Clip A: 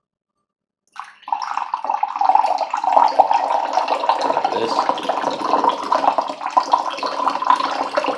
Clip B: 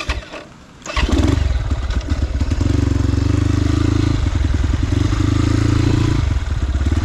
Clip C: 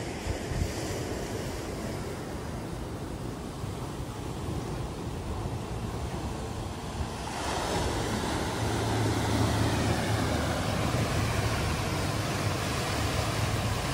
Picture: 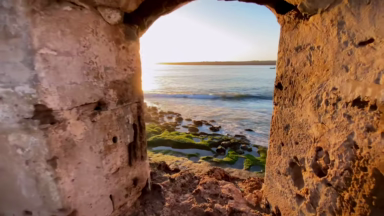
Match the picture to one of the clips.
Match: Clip C